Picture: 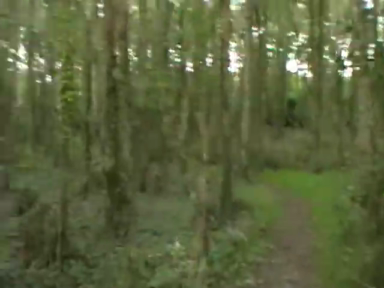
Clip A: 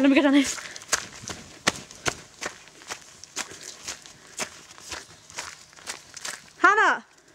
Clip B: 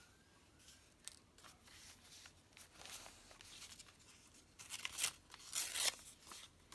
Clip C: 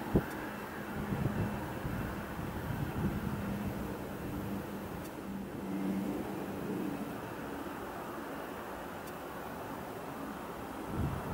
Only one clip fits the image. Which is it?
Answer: A